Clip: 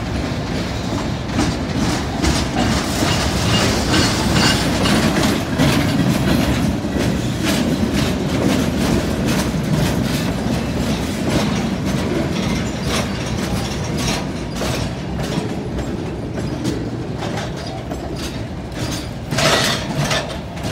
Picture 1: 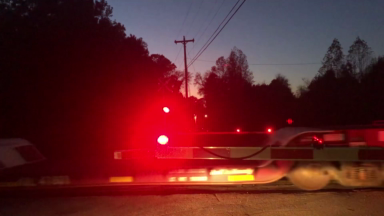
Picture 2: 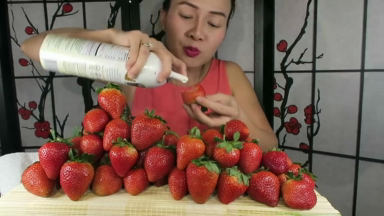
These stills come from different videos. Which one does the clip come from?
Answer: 1